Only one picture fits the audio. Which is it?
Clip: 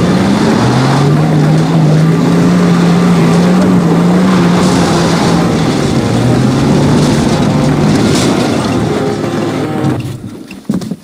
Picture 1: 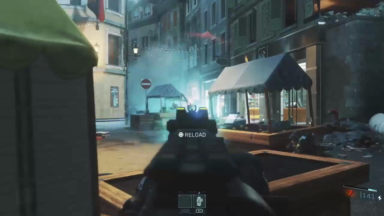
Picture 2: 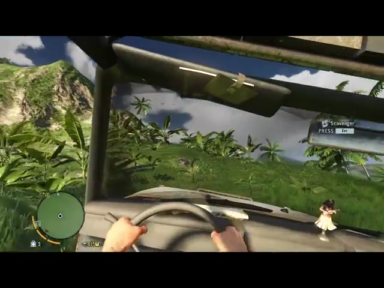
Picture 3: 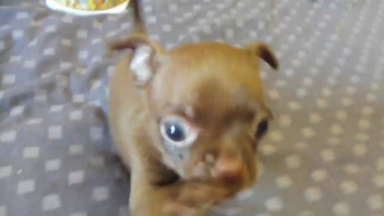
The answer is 2